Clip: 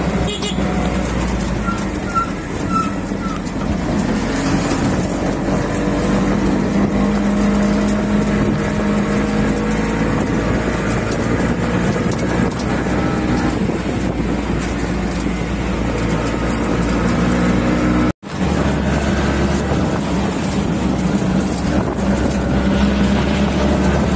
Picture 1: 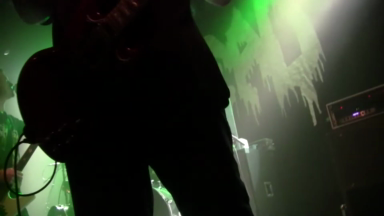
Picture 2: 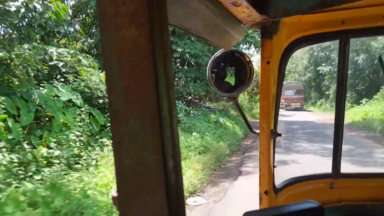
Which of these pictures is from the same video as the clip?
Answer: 2